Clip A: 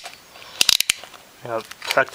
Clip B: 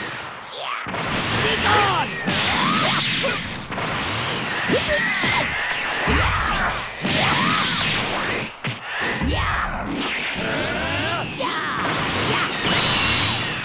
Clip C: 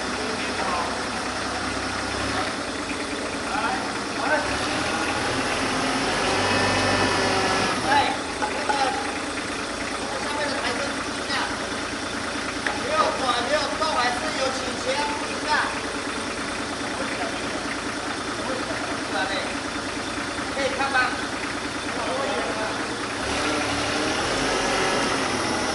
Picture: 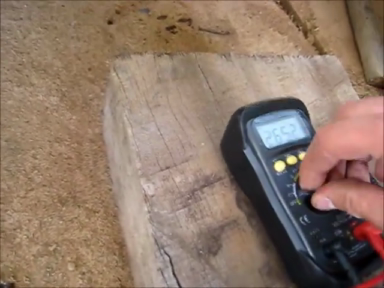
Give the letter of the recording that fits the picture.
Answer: A